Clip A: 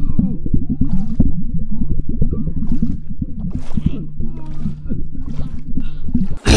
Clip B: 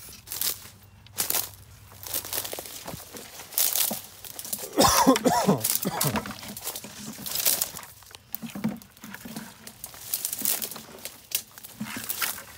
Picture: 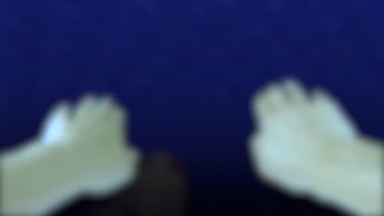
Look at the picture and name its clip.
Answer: A